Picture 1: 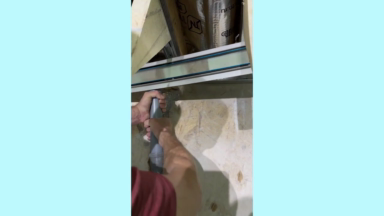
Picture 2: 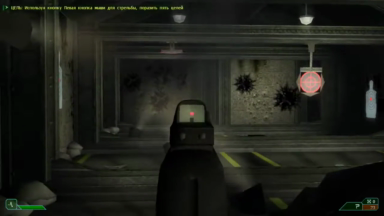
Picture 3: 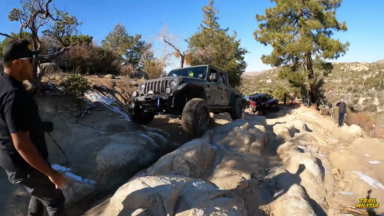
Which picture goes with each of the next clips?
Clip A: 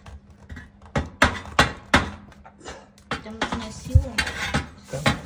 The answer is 1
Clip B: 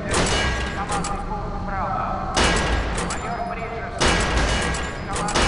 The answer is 2